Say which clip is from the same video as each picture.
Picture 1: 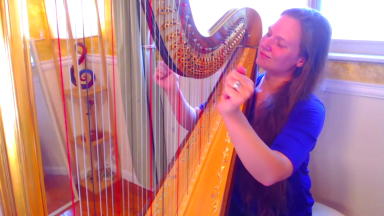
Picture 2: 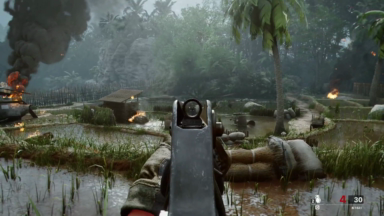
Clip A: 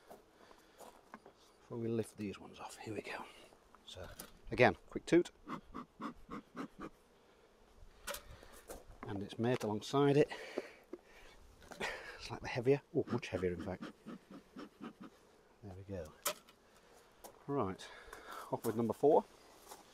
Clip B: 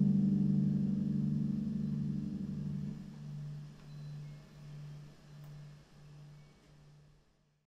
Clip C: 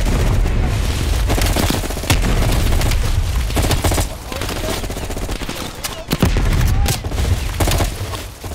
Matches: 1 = B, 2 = C